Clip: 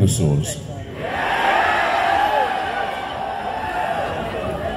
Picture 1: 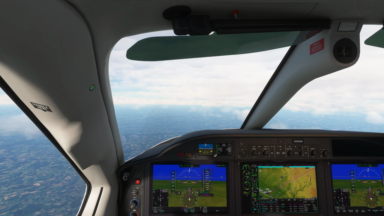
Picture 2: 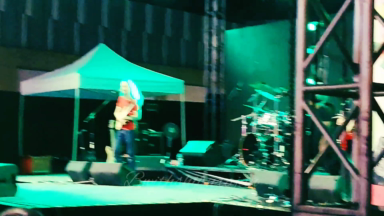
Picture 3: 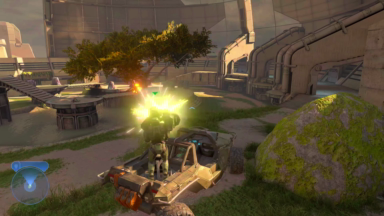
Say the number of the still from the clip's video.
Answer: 2